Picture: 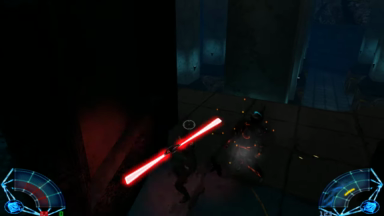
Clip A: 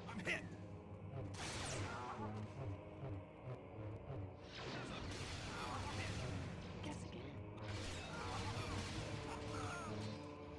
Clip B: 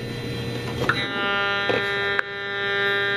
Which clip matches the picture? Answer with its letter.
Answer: A